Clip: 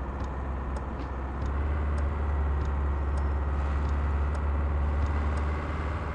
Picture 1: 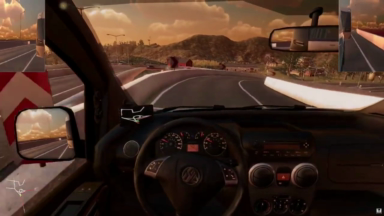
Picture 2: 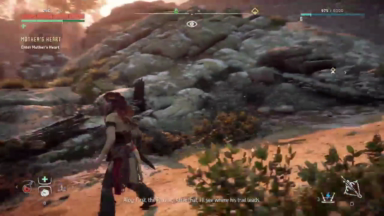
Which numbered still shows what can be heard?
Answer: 1